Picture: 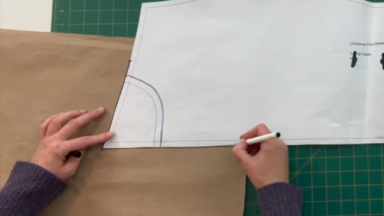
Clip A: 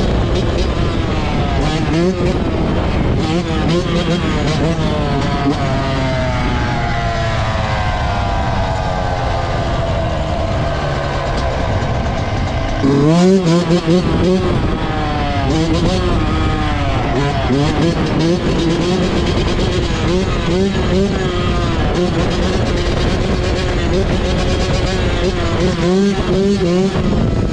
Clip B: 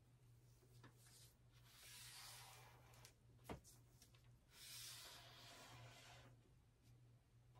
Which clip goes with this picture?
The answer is B